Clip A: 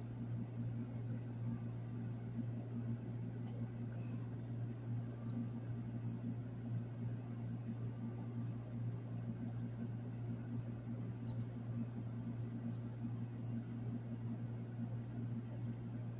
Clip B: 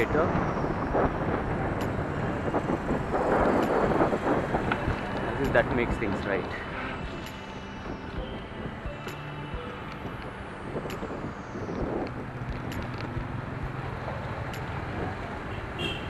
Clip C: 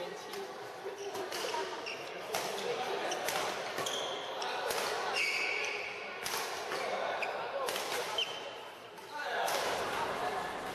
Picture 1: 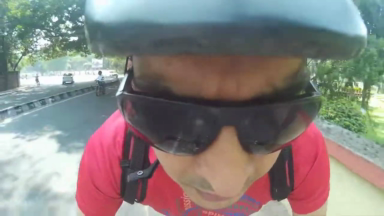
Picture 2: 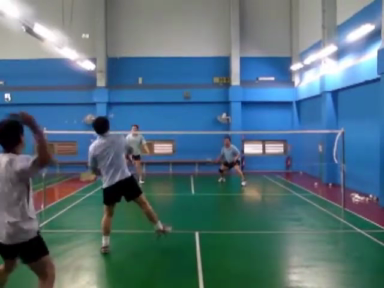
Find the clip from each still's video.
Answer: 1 B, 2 C